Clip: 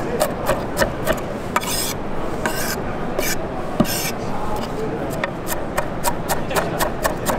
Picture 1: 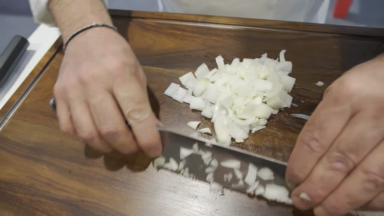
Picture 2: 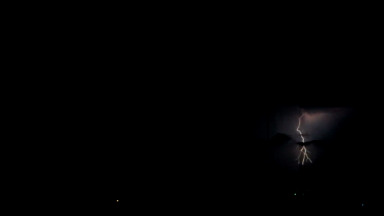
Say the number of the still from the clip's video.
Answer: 1